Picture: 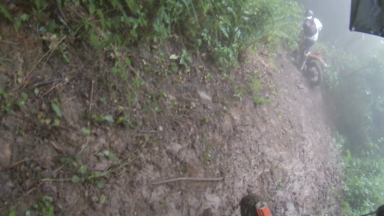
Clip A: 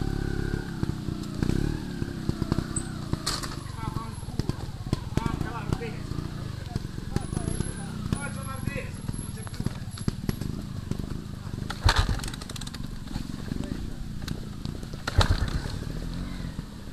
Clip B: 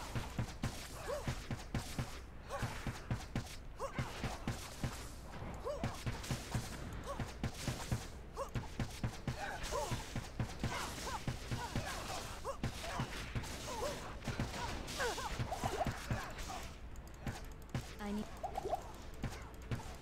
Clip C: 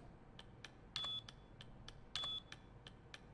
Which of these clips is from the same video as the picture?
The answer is A